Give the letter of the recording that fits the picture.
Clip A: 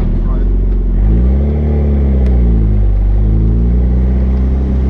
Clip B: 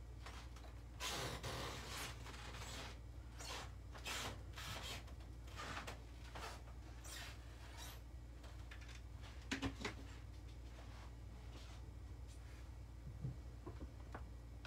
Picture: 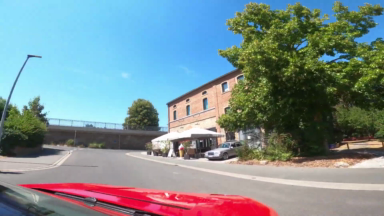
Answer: A